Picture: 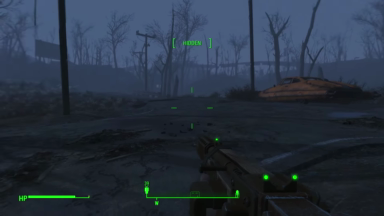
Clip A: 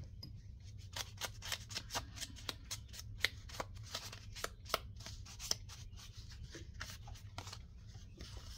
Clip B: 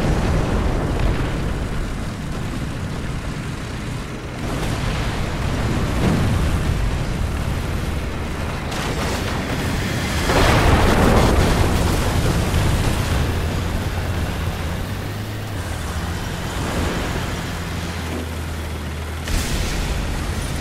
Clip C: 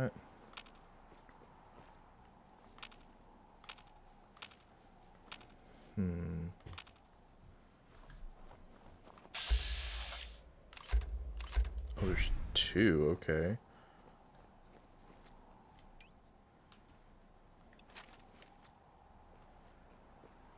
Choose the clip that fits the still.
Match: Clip C